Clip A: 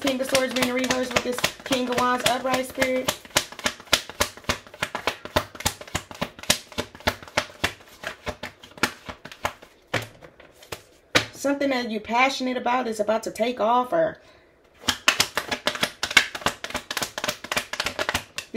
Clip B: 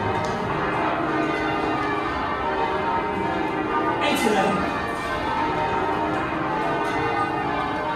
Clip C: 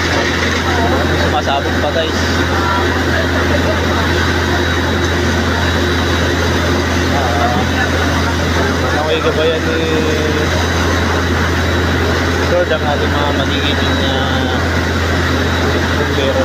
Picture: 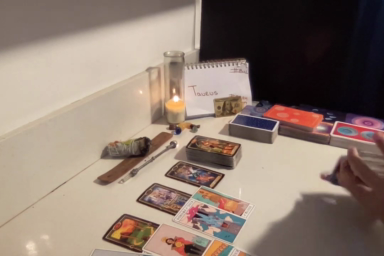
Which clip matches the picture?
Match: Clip A